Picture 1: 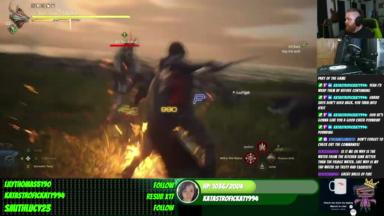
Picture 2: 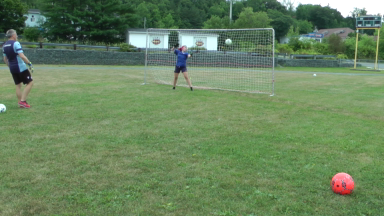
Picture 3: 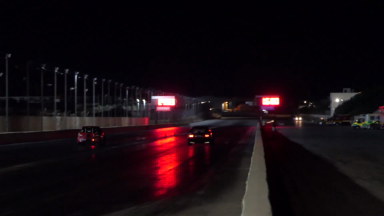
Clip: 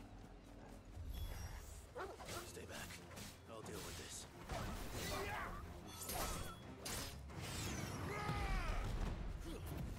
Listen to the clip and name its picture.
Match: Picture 1